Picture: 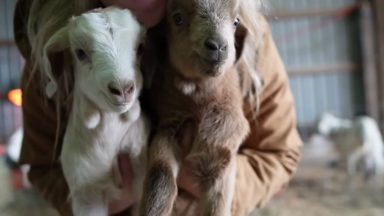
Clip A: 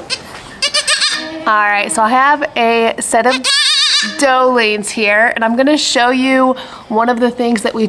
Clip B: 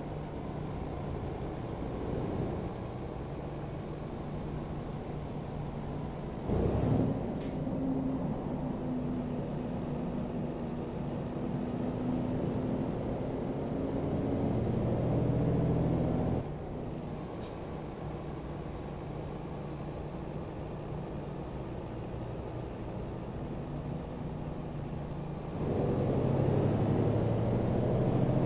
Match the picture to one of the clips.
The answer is A